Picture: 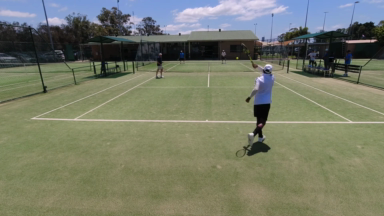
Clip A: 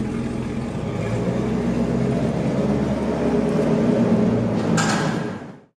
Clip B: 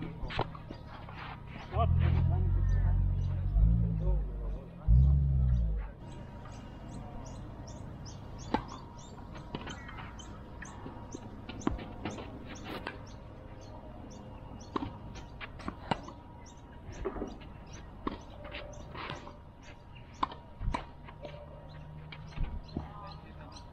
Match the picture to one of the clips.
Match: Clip B